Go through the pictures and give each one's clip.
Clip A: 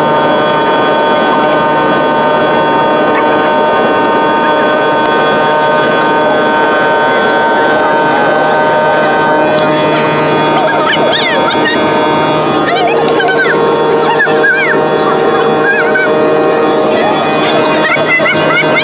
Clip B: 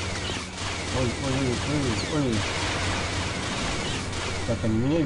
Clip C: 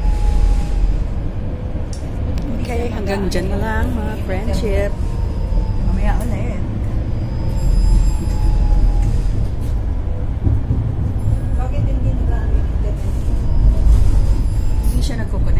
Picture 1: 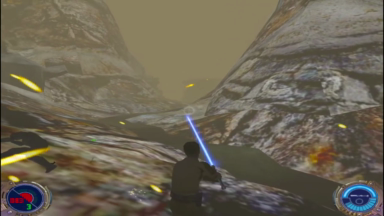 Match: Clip B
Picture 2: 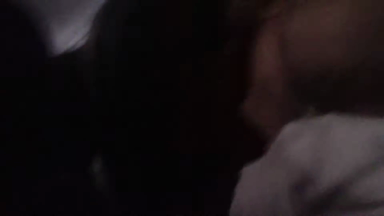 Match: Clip A